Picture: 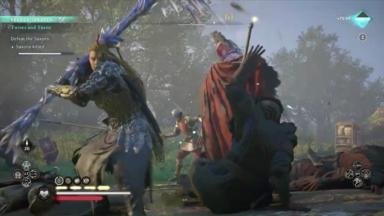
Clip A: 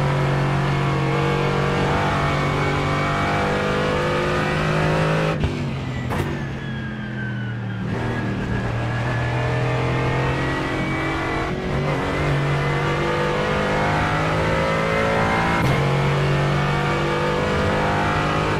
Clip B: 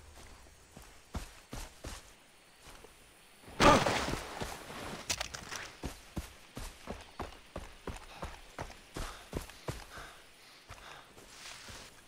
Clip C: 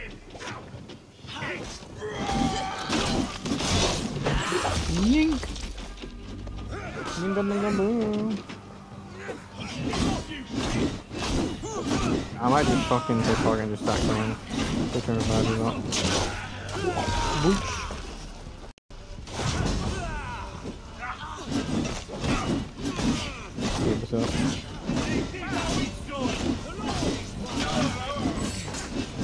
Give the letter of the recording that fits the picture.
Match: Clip C